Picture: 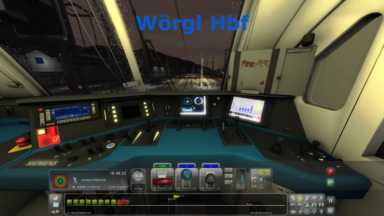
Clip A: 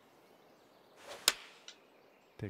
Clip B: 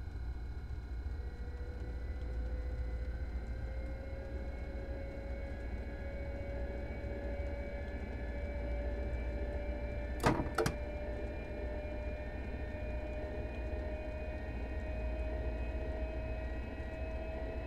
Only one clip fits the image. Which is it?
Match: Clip B